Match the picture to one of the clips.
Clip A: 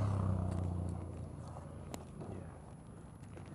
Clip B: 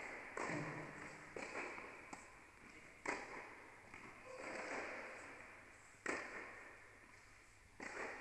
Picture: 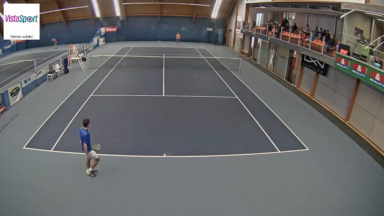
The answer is B